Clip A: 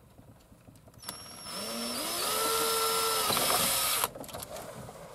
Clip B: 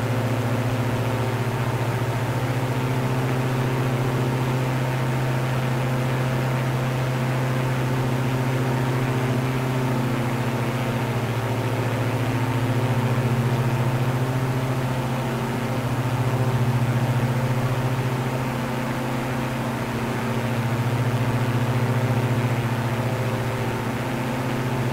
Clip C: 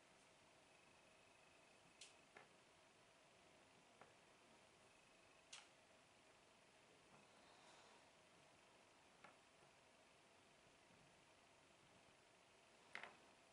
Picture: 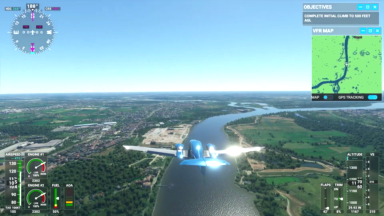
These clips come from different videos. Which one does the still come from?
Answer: B